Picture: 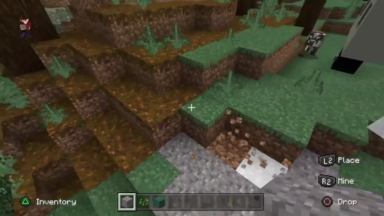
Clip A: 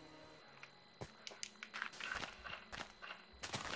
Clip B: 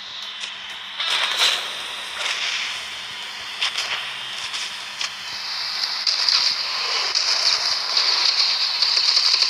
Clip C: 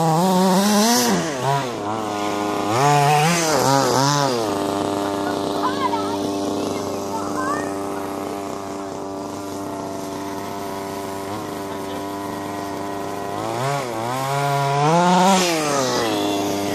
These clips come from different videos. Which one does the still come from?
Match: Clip A